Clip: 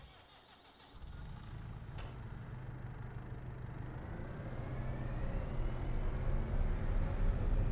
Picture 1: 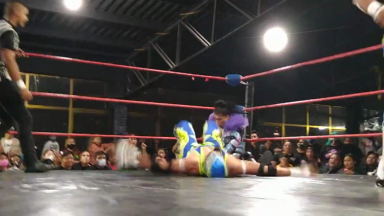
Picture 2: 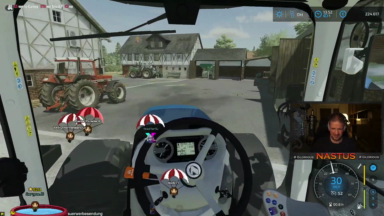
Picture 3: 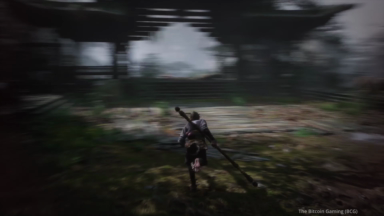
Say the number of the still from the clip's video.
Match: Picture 2